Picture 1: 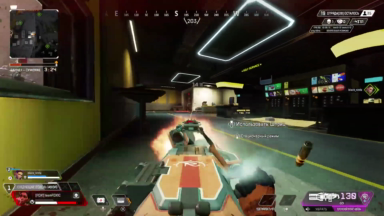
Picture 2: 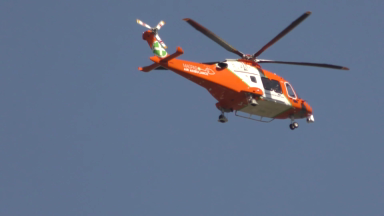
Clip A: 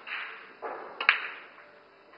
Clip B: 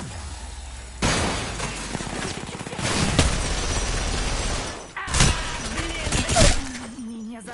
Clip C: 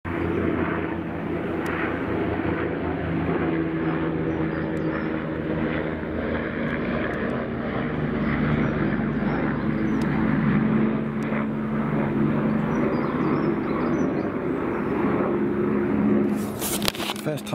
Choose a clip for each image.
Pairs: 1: B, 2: C